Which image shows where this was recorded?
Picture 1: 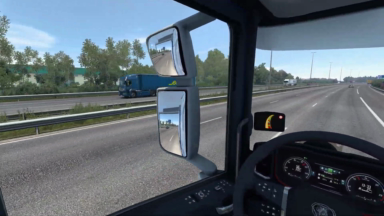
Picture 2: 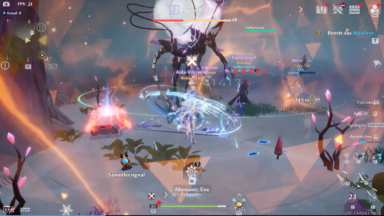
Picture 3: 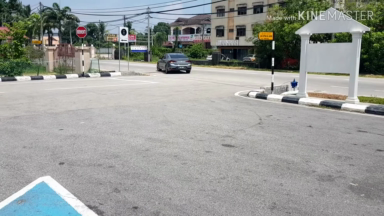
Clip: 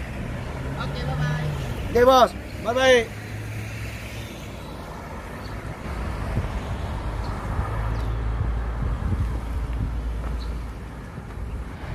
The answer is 3